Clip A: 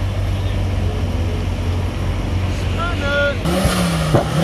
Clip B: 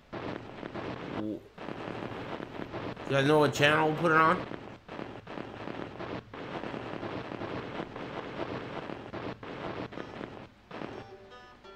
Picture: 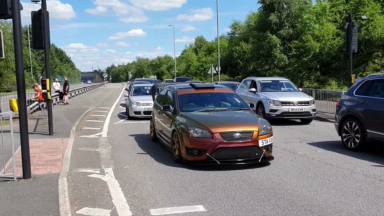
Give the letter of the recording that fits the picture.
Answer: A